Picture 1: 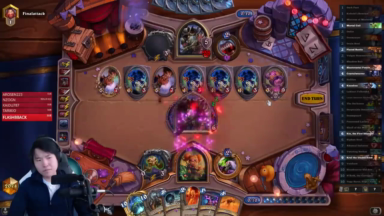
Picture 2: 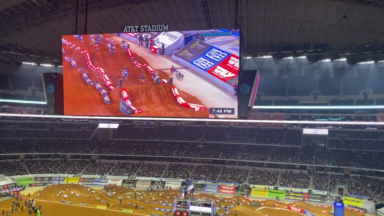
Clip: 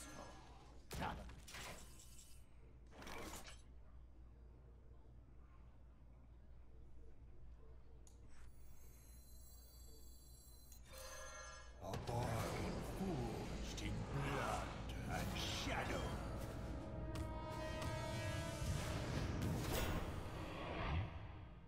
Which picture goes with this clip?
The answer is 1